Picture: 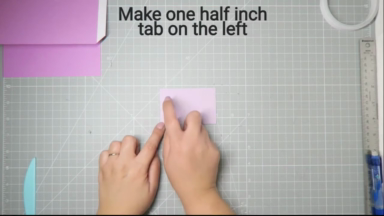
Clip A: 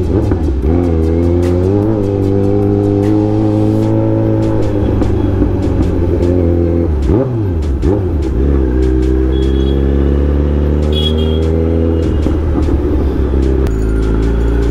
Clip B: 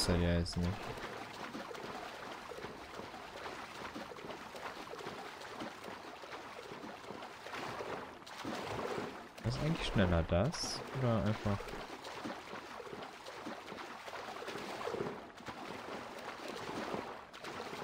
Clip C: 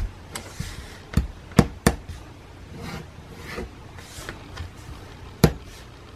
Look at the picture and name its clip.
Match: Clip C